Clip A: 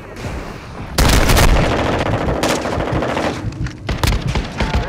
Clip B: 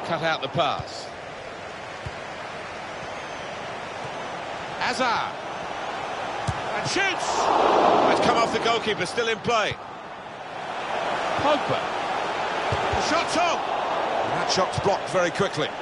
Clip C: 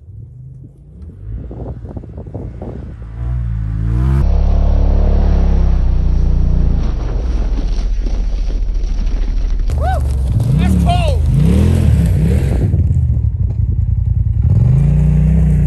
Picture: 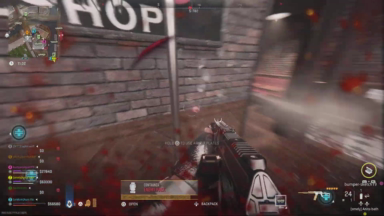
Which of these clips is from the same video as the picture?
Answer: A